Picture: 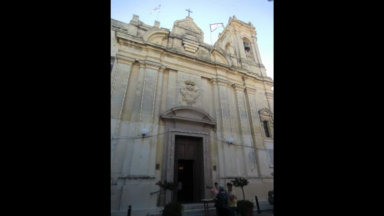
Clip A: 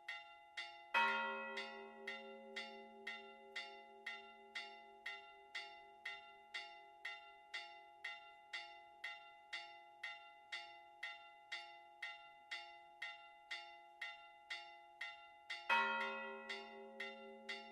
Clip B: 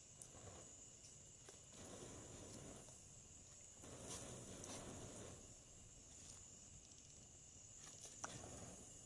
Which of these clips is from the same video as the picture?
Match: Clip A